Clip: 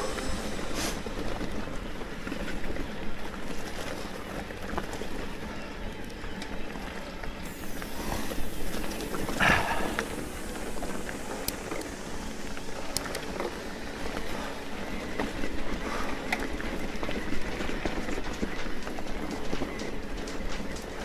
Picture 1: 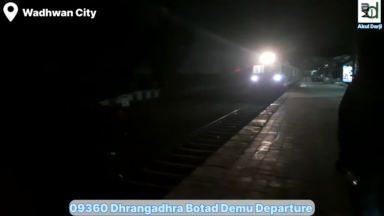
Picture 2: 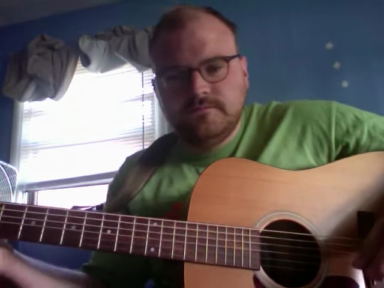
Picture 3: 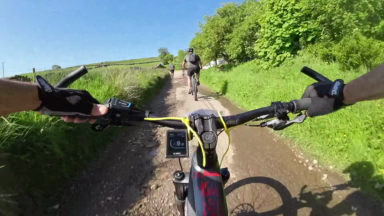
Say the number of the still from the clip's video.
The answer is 3